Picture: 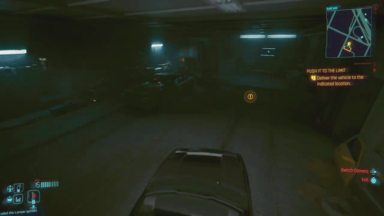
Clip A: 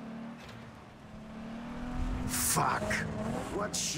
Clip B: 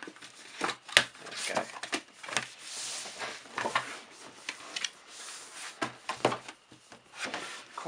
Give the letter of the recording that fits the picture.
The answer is A